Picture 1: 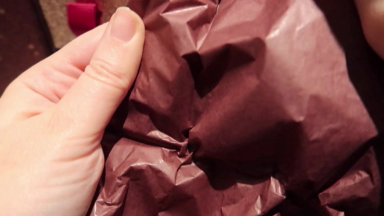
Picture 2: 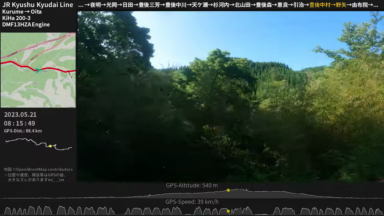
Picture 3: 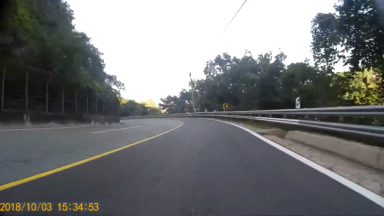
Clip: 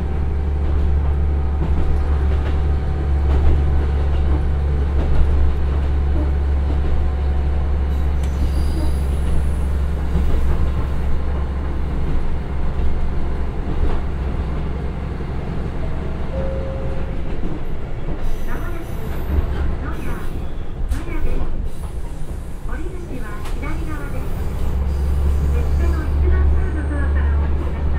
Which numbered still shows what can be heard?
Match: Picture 2